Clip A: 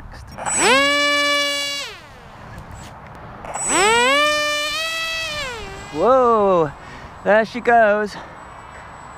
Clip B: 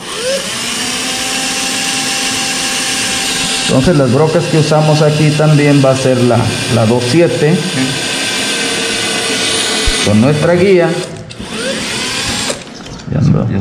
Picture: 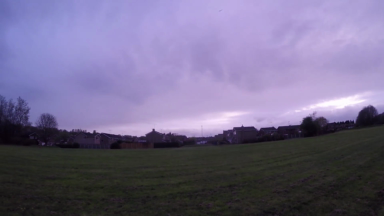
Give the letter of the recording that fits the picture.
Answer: A